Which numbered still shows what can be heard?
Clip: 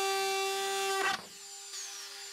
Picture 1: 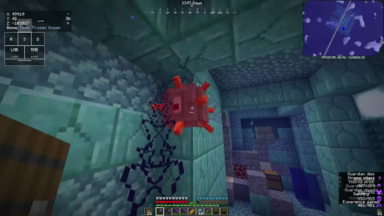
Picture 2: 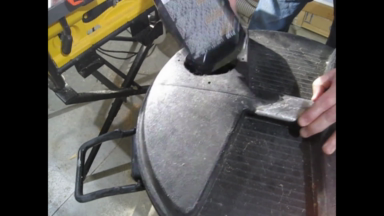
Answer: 2